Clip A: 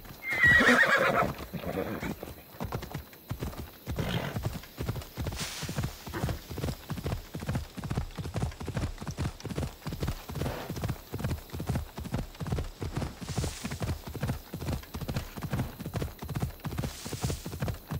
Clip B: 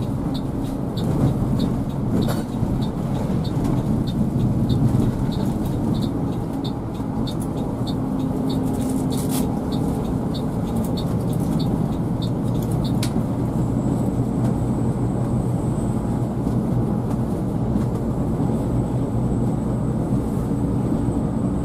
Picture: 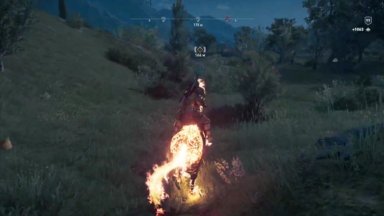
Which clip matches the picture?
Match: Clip A